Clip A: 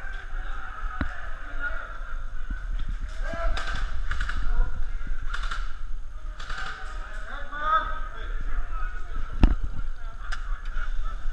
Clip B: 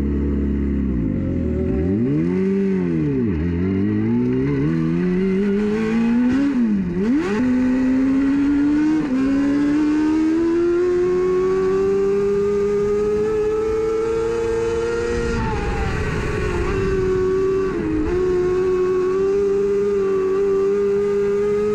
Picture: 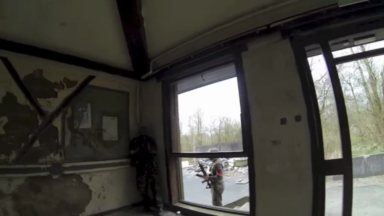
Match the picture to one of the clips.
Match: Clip A